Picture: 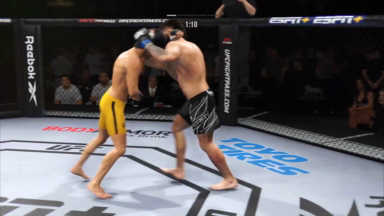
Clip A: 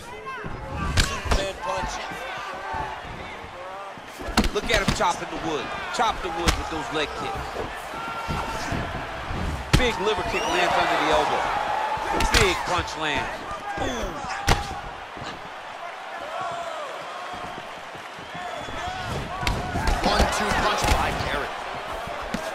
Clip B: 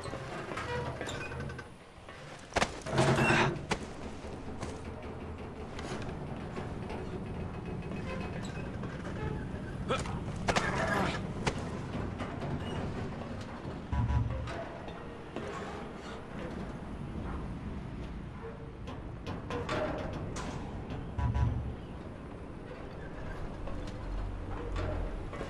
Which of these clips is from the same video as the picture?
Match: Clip A